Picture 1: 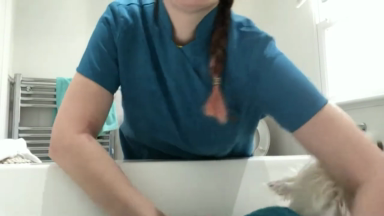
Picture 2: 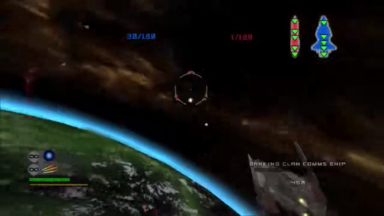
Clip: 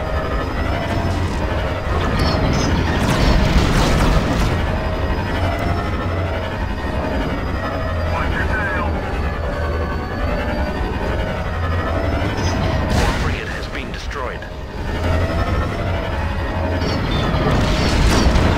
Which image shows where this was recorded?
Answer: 2